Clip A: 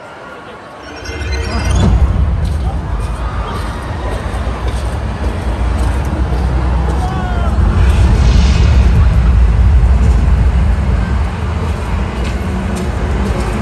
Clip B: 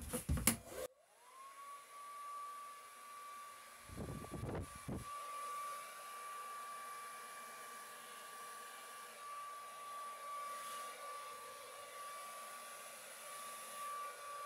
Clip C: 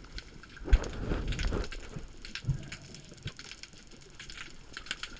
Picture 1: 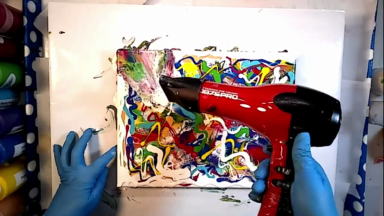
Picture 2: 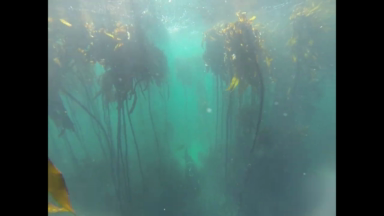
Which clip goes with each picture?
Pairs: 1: B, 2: C